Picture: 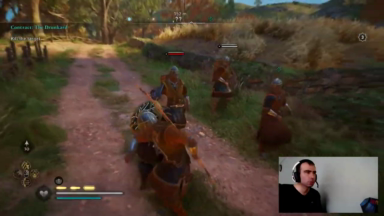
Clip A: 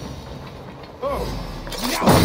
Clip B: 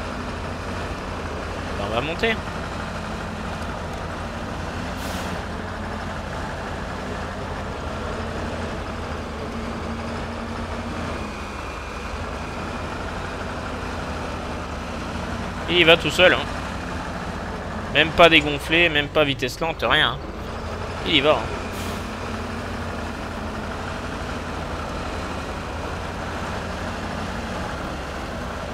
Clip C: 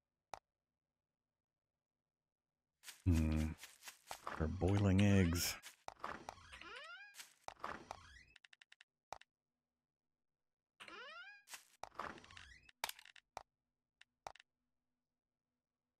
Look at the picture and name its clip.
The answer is A